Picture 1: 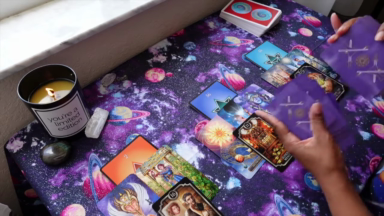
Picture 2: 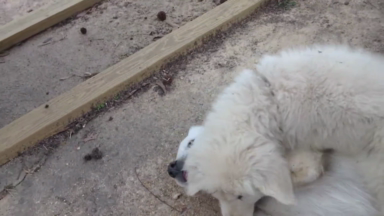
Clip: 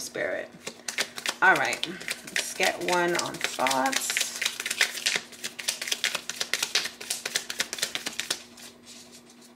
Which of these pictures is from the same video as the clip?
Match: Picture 1